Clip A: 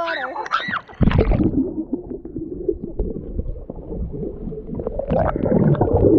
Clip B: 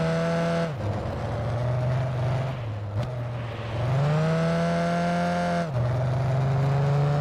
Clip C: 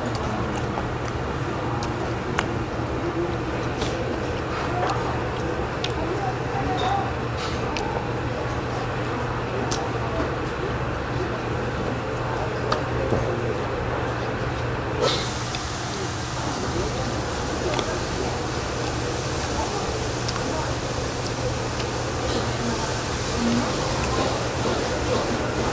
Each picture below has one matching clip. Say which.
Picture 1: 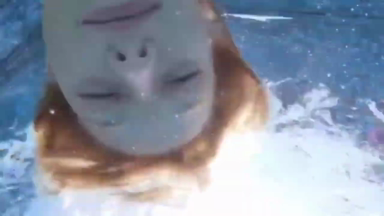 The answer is A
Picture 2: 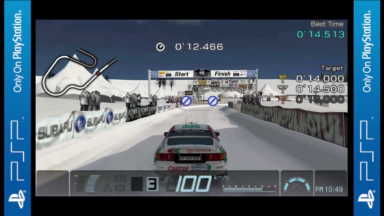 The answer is B